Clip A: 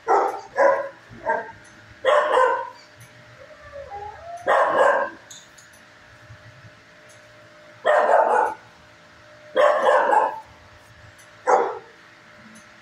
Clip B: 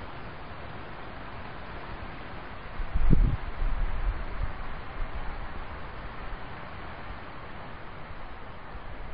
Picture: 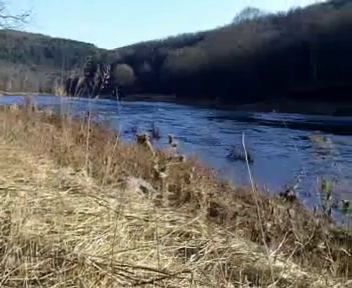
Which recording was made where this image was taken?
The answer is B